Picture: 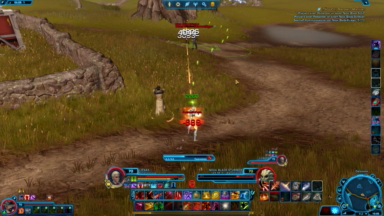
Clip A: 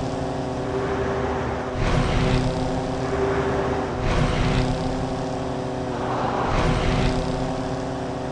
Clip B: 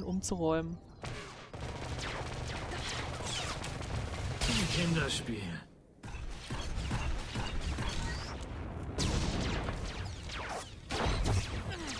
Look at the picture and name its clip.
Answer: B